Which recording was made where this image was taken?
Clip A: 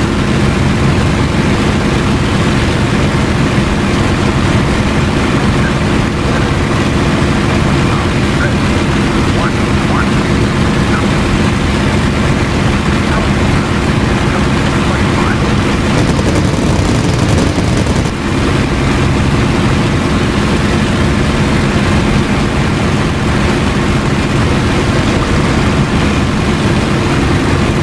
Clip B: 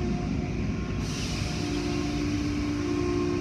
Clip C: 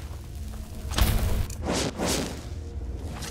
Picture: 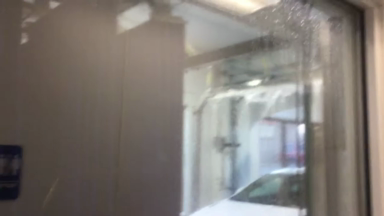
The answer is B